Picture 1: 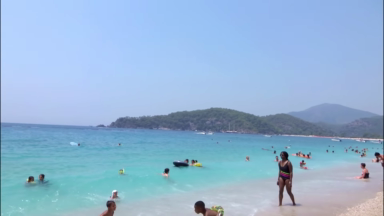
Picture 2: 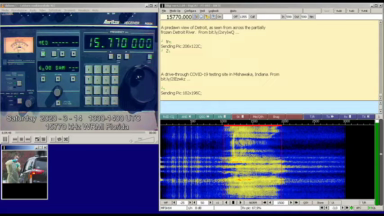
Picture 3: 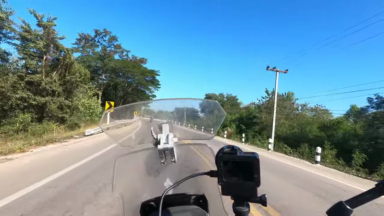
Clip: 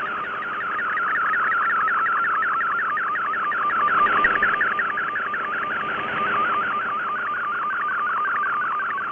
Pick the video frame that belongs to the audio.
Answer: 2